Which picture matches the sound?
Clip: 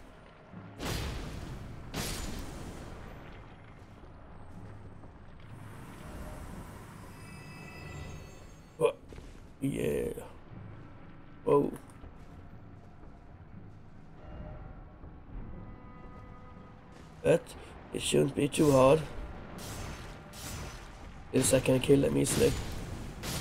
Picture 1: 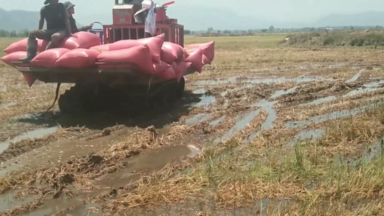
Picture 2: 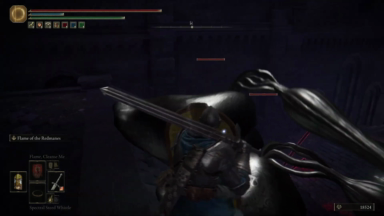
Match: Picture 2